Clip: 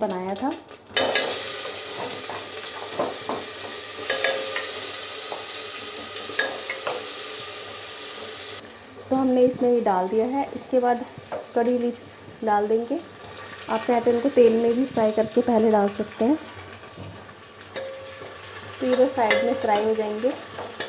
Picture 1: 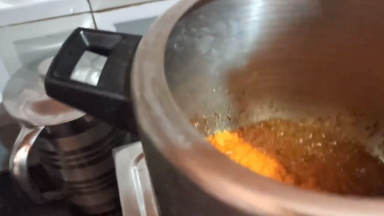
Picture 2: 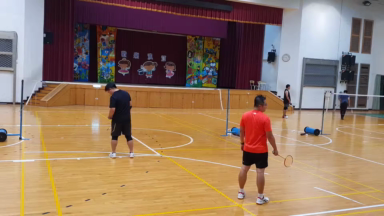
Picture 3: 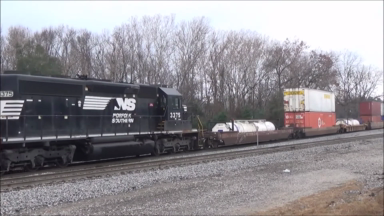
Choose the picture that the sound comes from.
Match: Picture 1